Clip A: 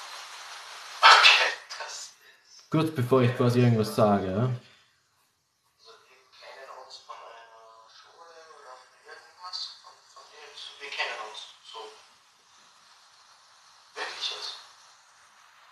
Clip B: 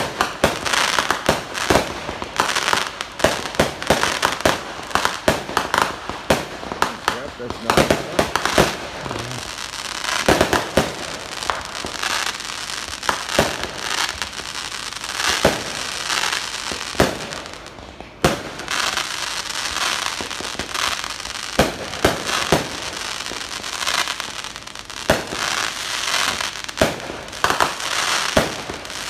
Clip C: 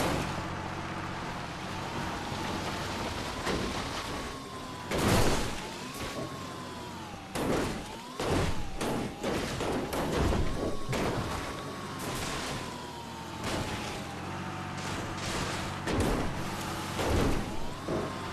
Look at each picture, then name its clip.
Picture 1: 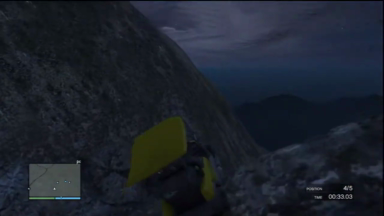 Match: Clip C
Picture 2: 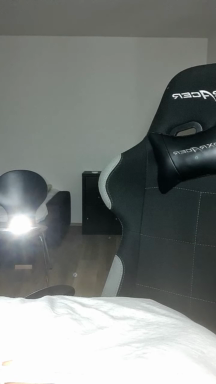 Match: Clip A